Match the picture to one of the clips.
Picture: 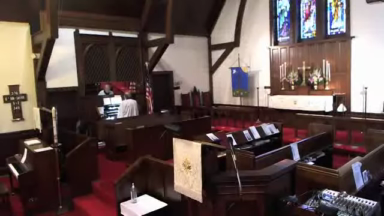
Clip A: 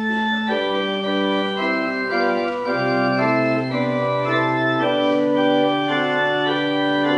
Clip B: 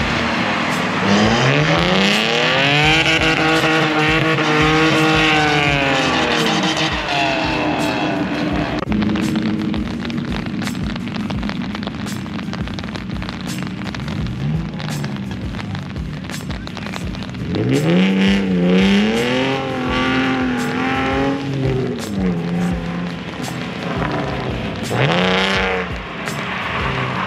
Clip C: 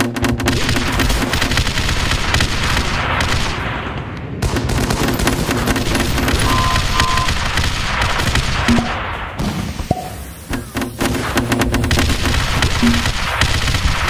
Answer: A